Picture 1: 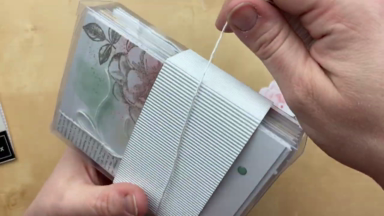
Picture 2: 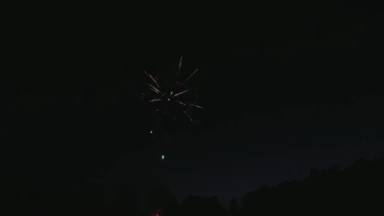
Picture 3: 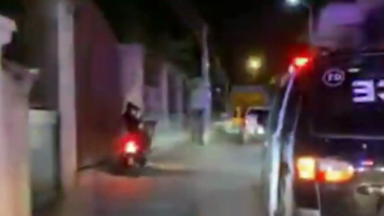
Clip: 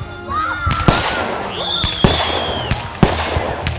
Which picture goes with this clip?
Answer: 2